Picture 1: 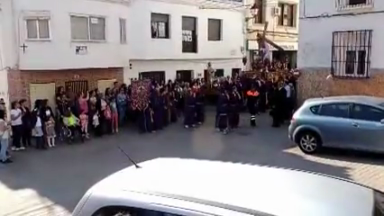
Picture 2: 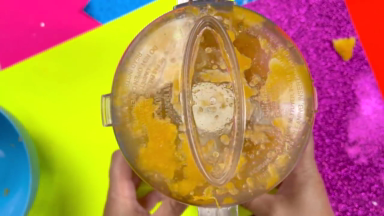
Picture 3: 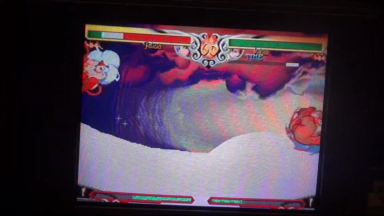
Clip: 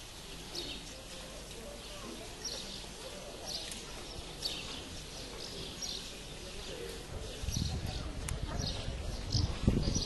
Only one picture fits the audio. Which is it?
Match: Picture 1